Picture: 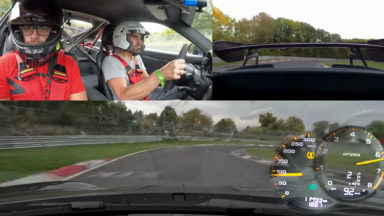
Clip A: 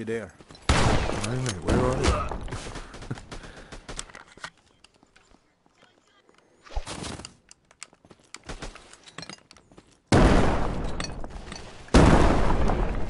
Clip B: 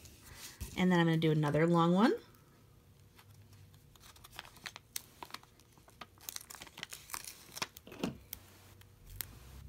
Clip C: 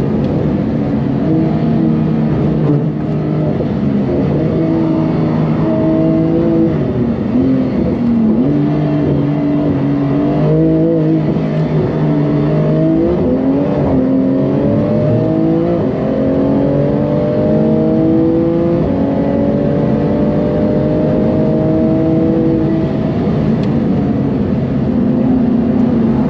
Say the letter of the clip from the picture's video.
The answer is C